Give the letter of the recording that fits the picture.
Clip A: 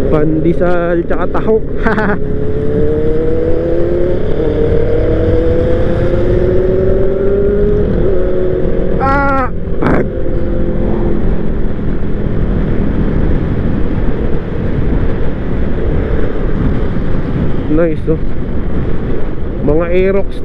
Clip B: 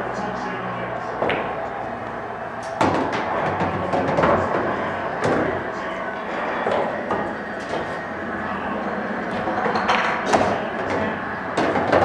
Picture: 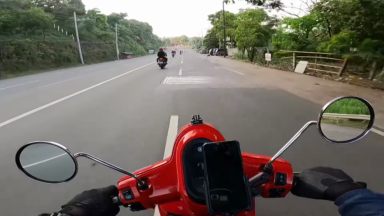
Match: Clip A